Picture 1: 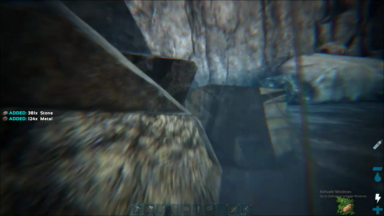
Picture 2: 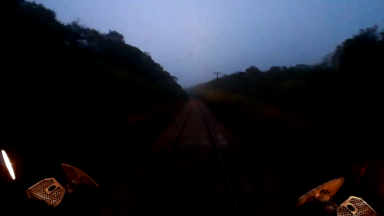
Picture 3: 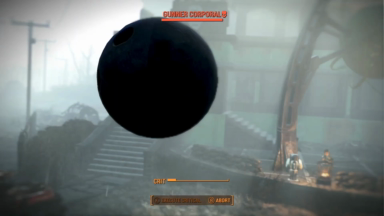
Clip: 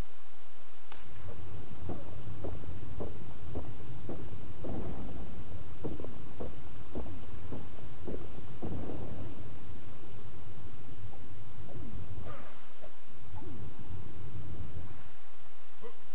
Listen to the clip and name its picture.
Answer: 1